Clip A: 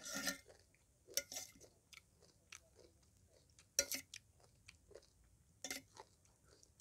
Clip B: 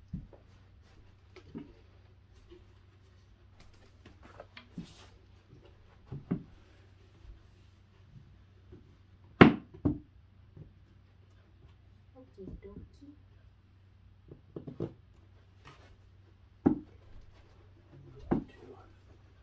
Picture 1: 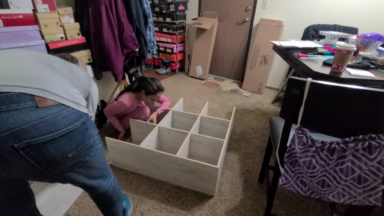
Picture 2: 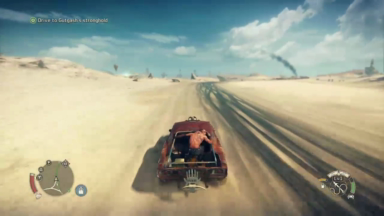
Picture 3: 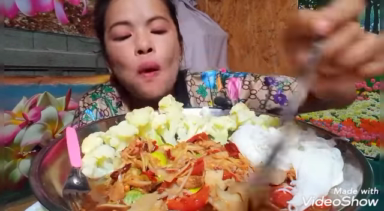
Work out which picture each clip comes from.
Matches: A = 3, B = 1